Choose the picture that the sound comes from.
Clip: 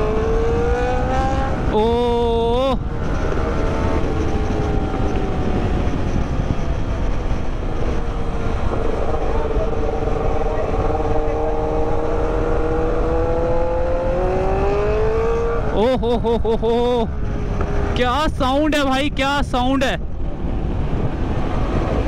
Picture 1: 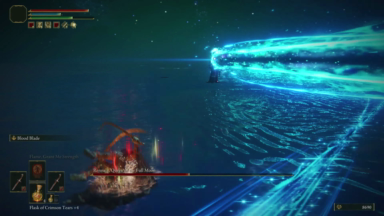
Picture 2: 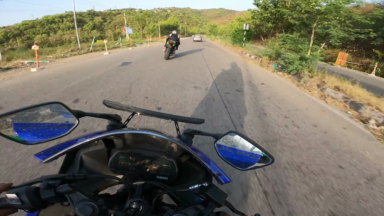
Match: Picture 2